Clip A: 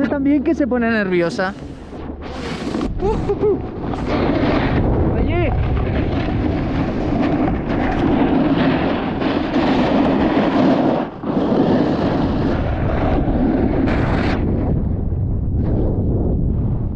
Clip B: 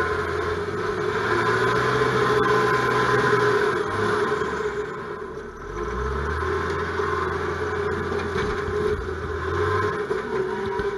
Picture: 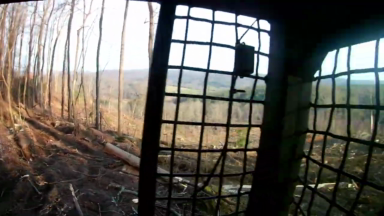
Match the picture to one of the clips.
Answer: B